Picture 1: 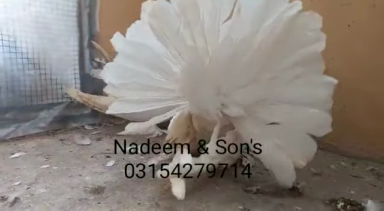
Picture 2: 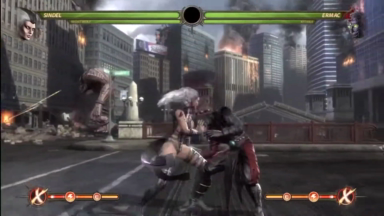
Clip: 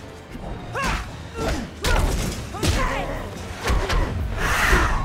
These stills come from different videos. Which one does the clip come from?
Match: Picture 2